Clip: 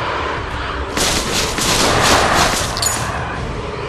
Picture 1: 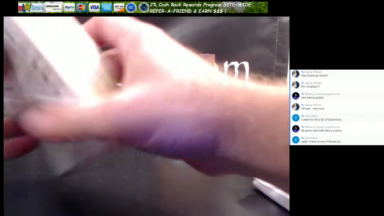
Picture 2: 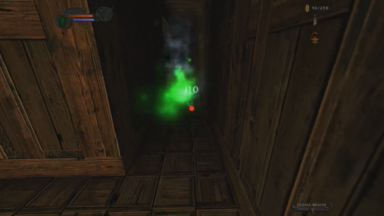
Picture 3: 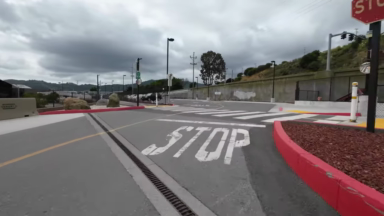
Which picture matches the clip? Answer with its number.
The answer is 2